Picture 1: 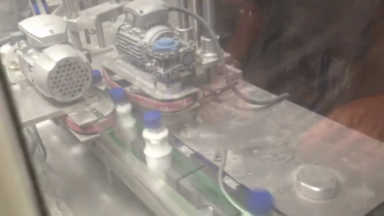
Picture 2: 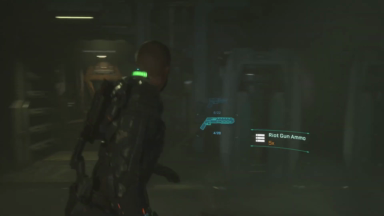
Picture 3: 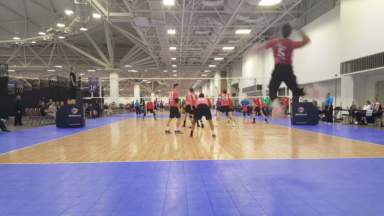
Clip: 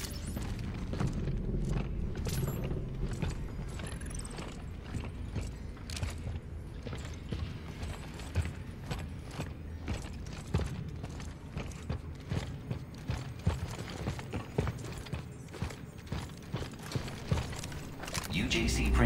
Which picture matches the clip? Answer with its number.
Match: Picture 2